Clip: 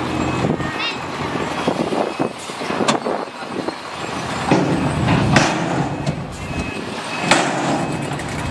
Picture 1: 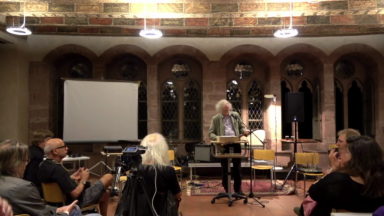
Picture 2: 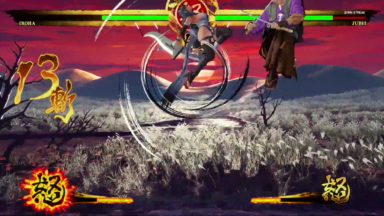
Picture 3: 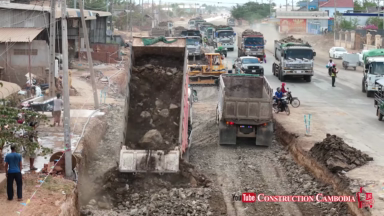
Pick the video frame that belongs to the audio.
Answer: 3